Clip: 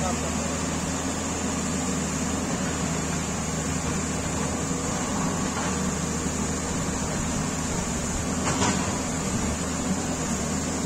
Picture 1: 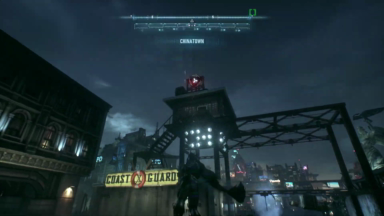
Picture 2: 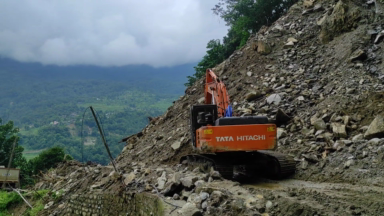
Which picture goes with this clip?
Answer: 2